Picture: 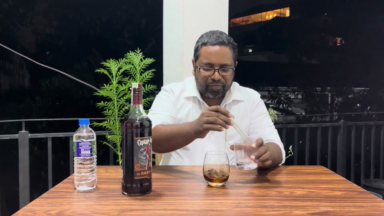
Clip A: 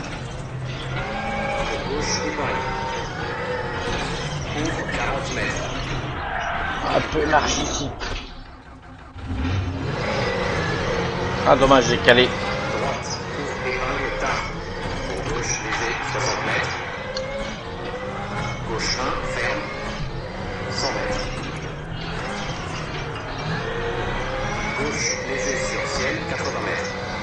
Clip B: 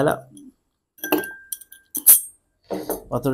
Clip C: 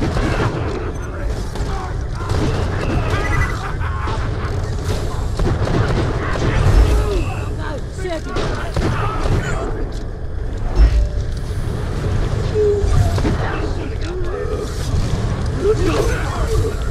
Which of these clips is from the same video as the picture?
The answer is B